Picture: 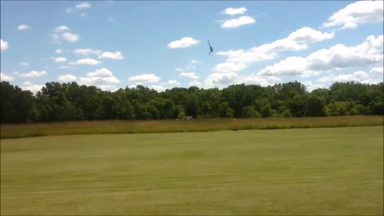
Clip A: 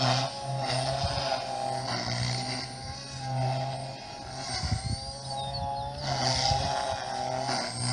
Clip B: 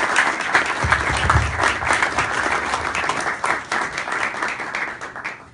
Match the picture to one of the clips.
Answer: A